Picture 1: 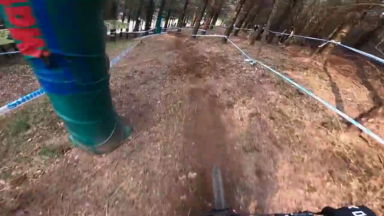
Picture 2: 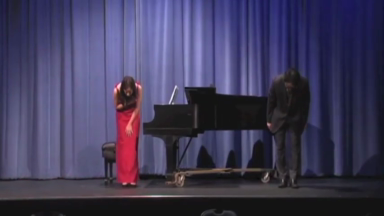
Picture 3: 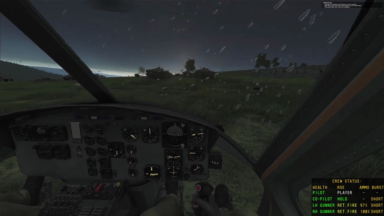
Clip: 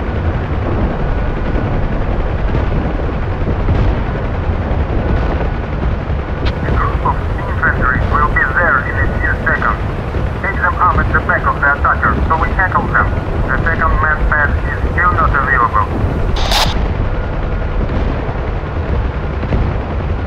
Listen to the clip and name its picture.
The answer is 3